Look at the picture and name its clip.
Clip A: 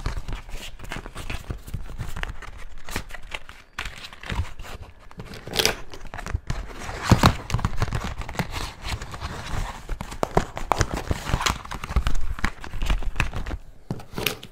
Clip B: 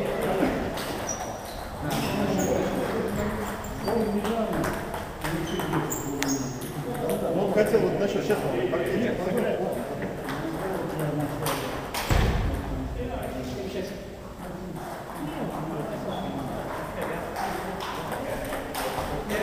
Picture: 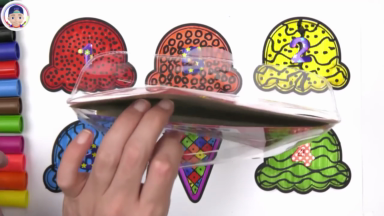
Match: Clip A